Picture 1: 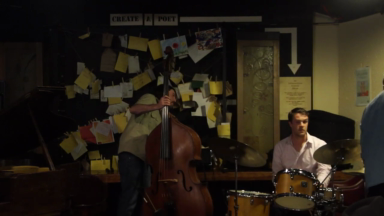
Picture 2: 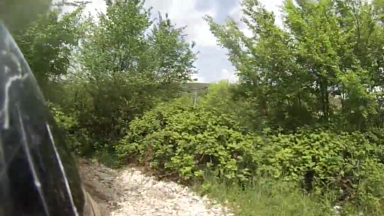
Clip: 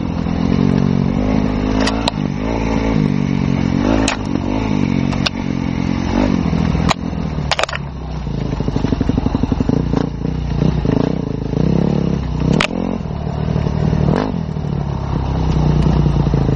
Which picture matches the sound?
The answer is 2